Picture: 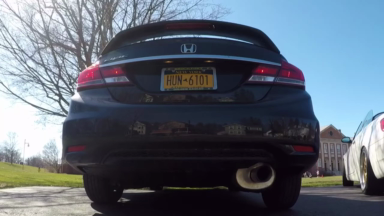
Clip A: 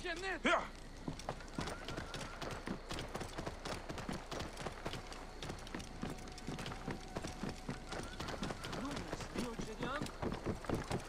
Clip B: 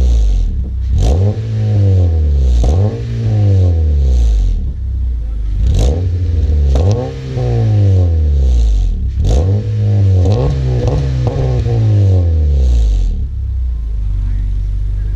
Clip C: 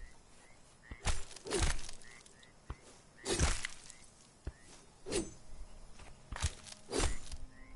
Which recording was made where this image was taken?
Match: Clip B